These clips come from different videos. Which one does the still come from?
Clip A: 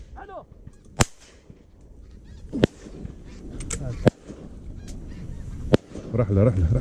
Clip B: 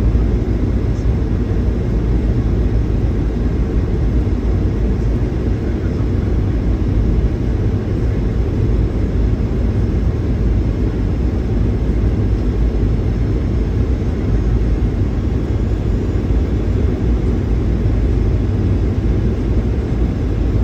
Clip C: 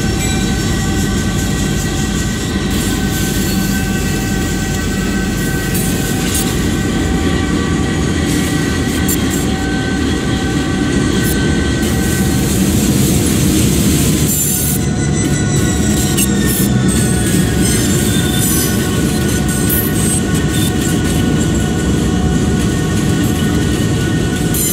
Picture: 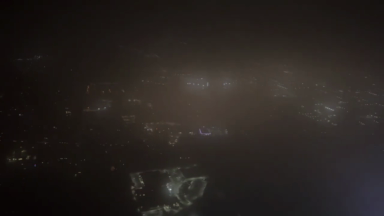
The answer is B